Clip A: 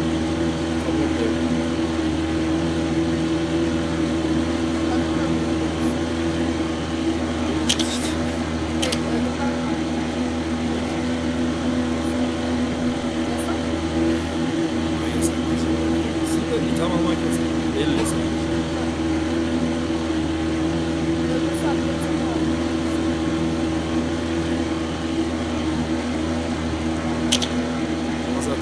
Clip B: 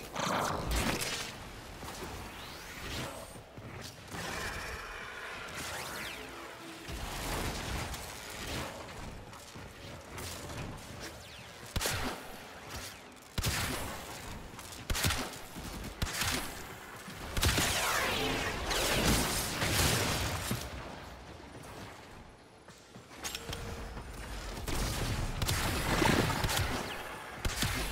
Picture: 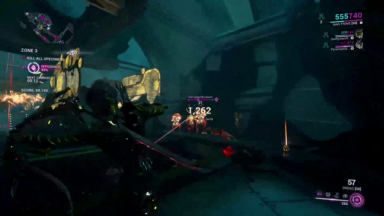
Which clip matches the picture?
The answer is B